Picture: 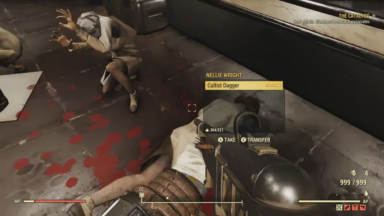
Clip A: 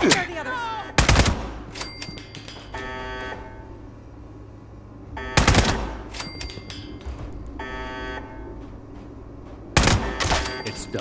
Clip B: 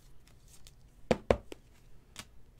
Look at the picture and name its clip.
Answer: A